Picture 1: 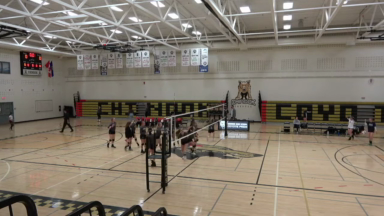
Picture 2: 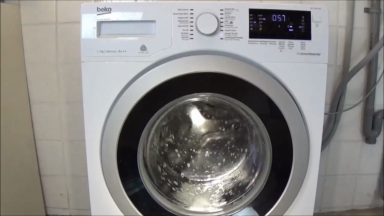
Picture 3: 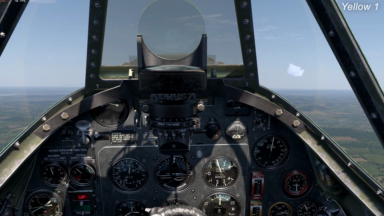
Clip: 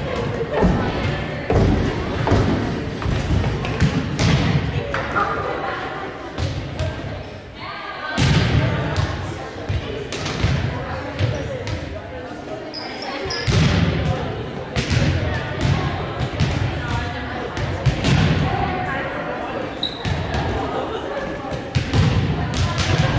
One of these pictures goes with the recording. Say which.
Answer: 1